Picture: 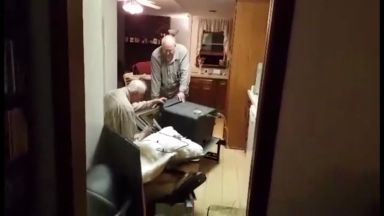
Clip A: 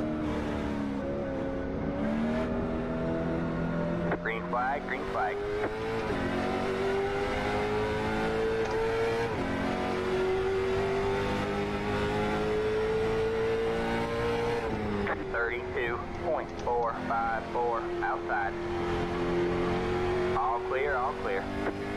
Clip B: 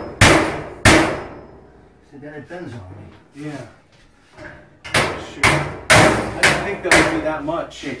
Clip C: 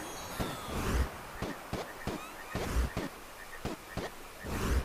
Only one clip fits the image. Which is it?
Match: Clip B